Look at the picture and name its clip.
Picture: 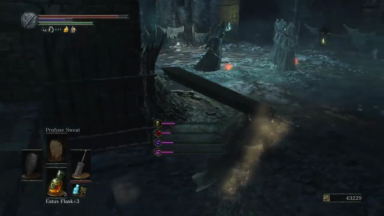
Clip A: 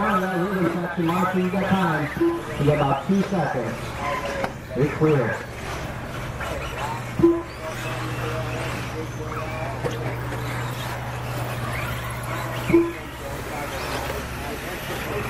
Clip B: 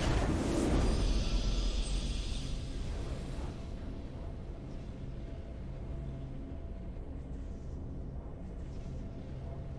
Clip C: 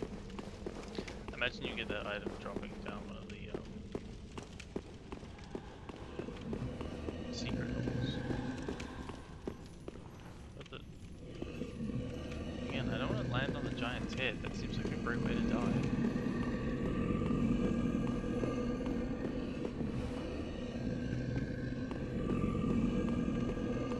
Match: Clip C